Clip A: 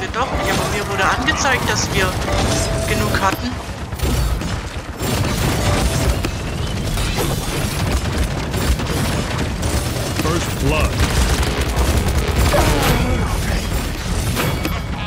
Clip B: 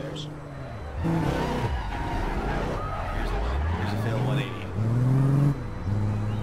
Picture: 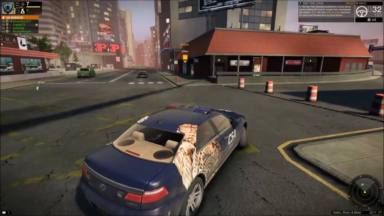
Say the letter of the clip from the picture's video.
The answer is B